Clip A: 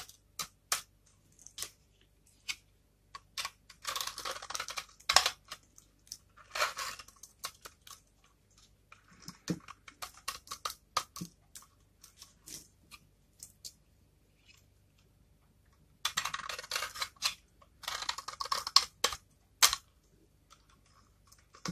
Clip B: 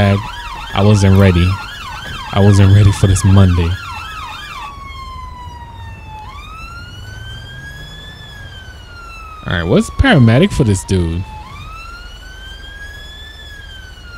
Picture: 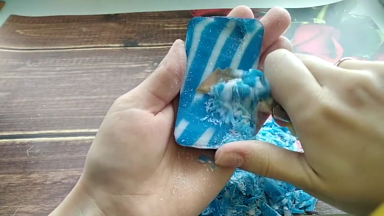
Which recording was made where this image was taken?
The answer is A